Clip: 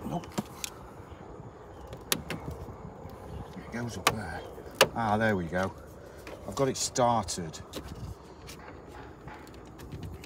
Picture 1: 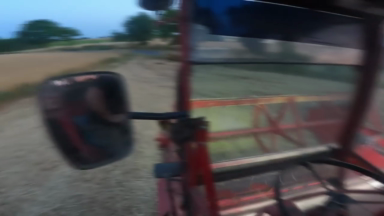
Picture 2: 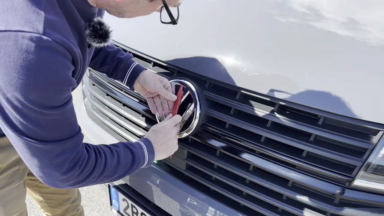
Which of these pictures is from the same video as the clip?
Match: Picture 2